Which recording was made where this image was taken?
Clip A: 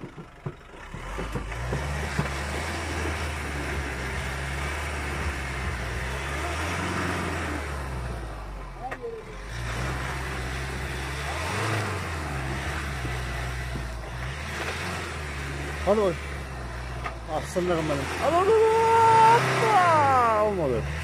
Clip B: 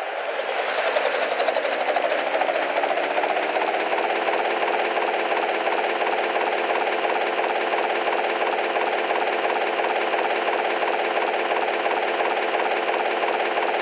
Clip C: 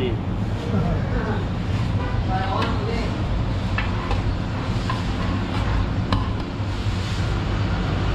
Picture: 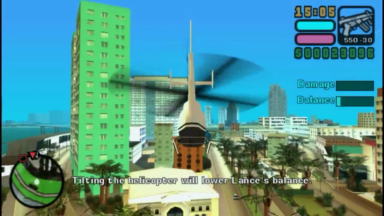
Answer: B